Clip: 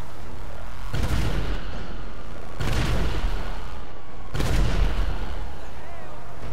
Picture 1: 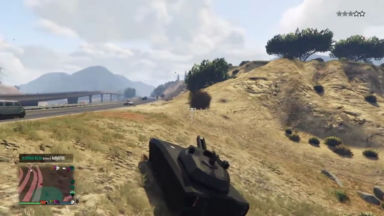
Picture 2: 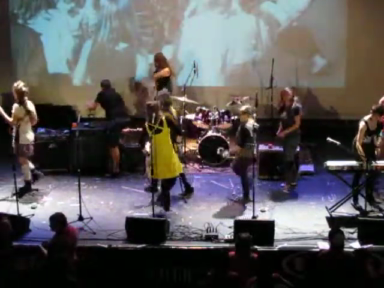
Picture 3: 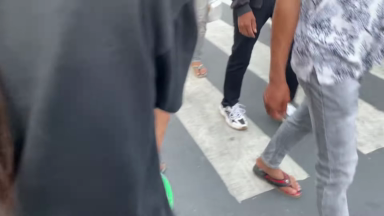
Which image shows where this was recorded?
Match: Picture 1